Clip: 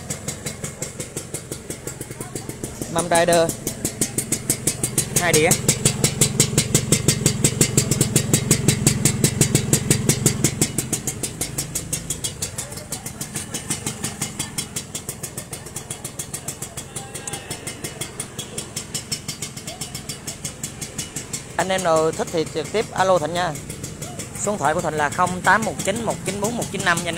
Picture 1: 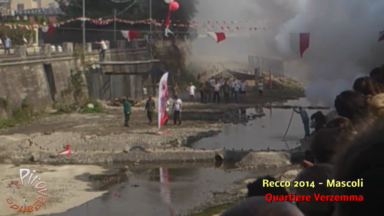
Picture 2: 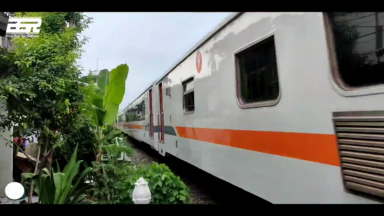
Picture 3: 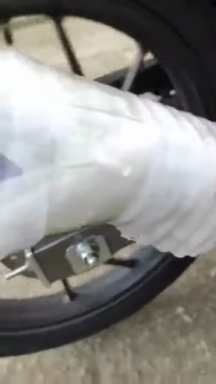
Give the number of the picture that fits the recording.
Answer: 3